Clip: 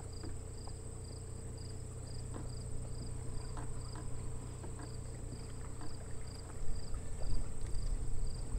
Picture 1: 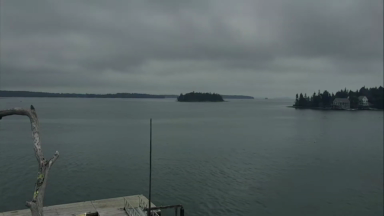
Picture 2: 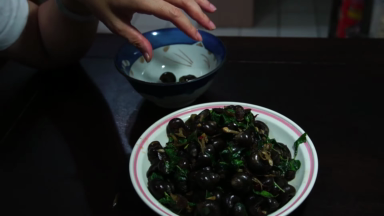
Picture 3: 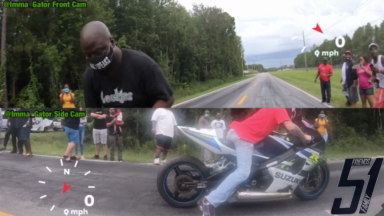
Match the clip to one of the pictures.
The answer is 1